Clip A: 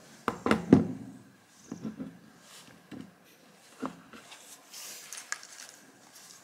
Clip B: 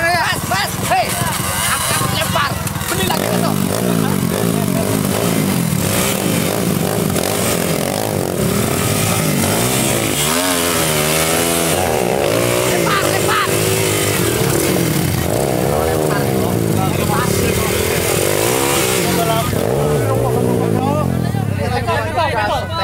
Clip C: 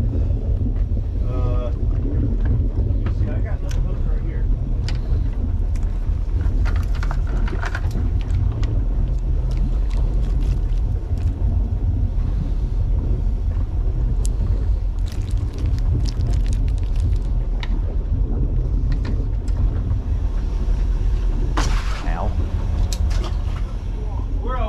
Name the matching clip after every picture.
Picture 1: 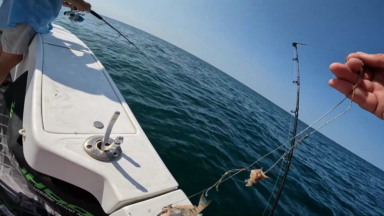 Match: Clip C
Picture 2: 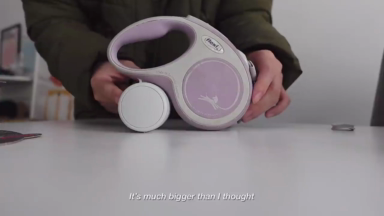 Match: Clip A